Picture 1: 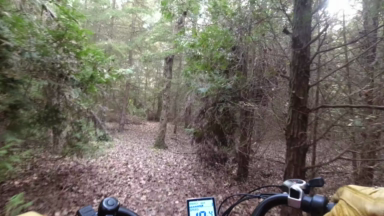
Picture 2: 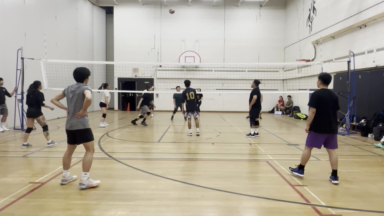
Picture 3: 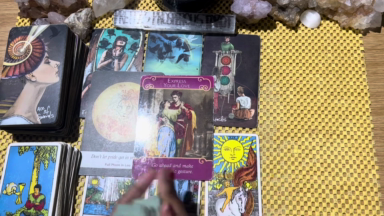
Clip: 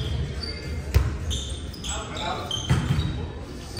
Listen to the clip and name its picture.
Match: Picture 2